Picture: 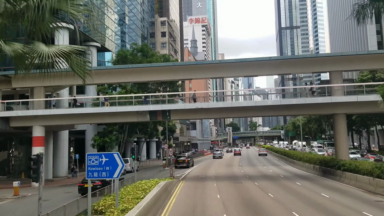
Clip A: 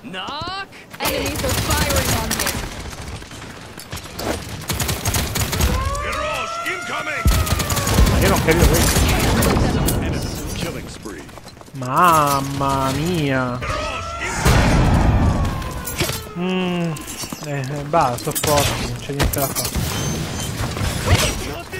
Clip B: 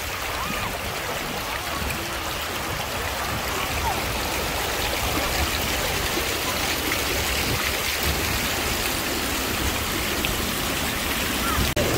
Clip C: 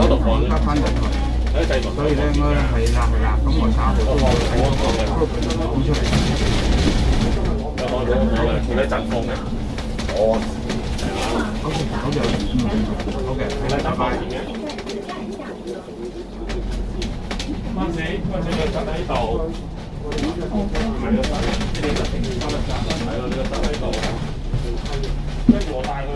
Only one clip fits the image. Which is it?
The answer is C